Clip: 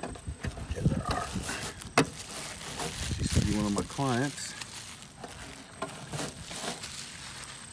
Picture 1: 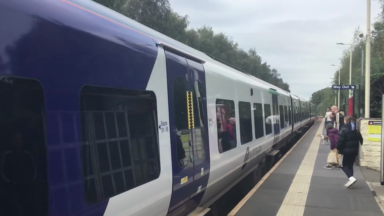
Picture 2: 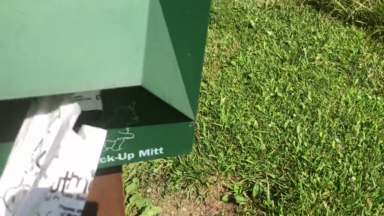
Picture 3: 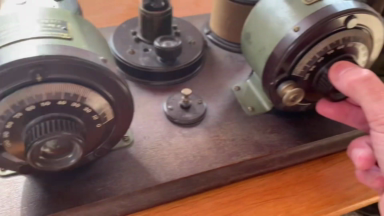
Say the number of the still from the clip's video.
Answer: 2